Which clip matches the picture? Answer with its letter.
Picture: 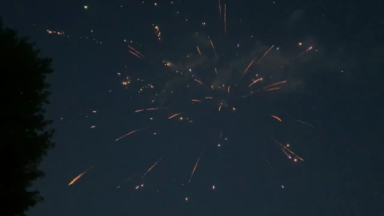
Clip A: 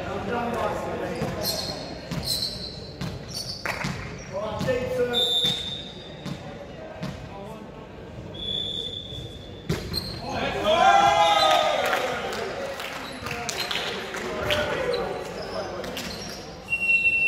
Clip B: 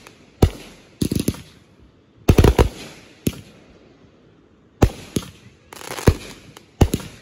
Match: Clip B